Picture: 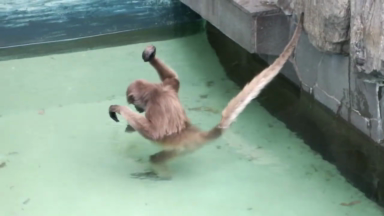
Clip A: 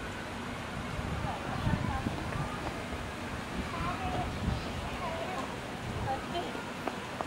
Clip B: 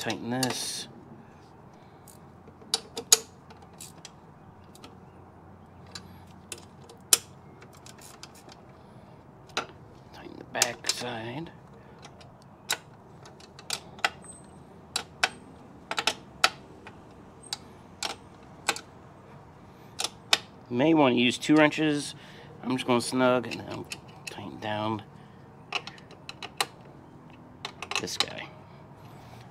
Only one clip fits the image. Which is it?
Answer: A